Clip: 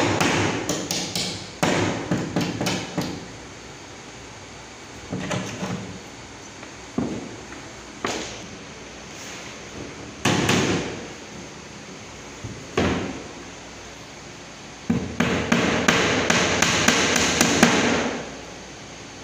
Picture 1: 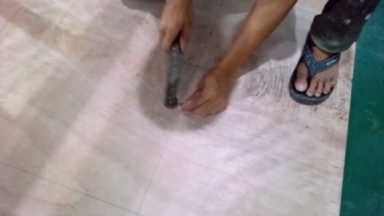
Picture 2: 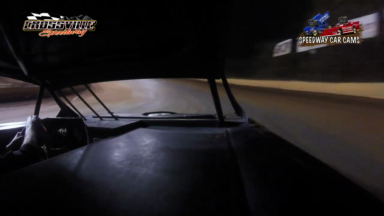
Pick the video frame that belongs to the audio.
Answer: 1